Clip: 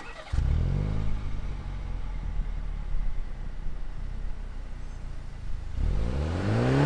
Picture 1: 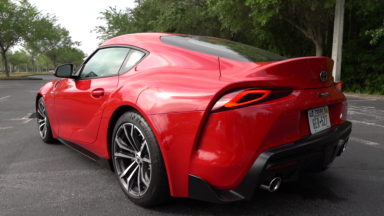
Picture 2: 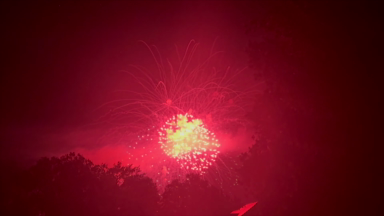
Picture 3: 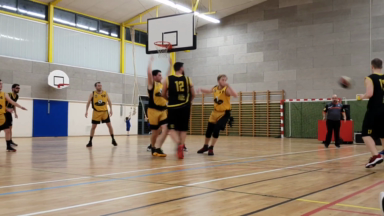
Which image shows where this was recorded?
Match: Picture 1